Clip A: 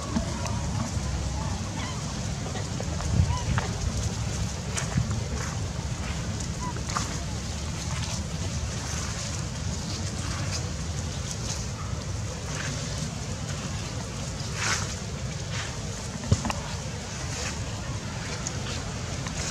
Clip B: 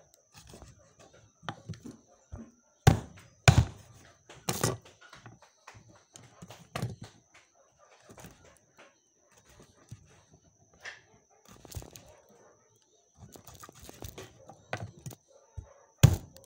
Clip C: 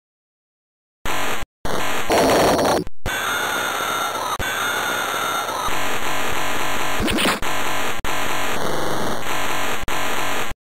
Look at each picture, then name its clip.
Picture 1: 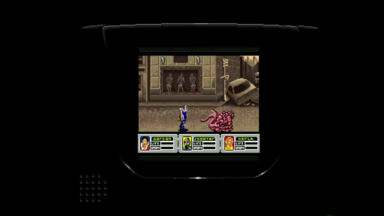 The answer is C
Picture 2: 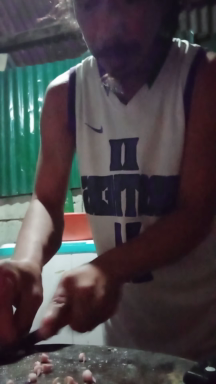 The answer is B